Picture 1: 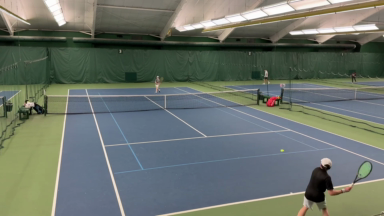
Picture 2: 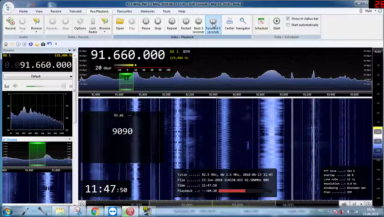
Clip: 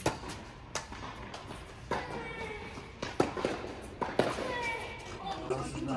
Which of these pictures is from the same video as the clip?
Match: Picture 1